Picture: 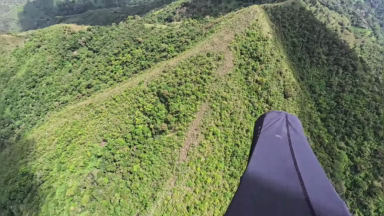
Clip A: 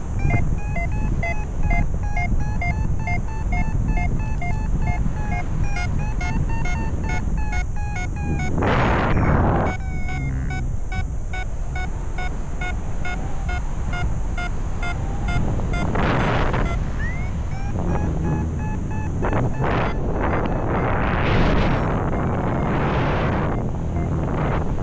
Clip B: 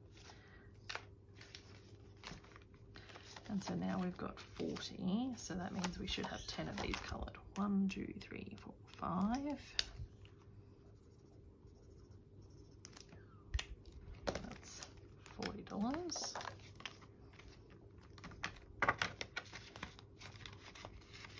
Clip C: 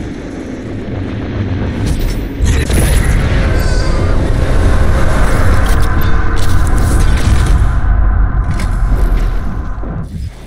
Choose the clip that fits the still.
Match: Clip A